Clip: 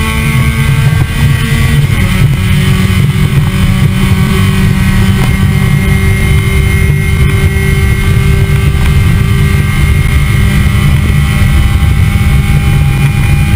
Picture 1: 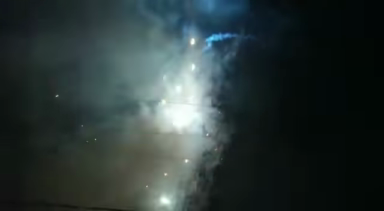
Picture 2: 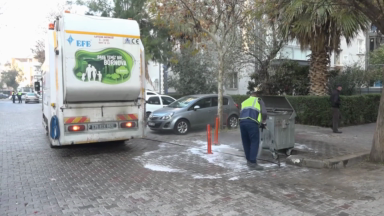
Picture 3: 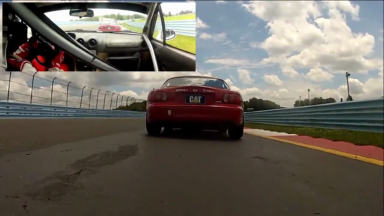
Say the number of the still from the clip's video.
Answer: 3